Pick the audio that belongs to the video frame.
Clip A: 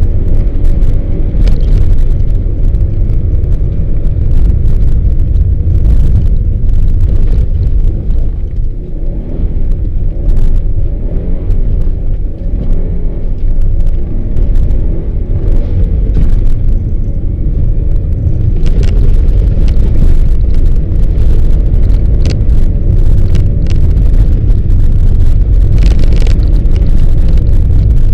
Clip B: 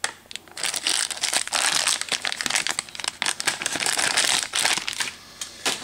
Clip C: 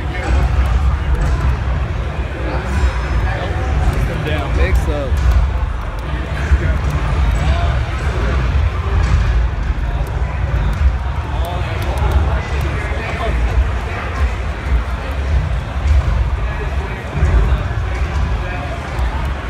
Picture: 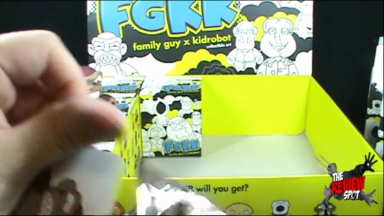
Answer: B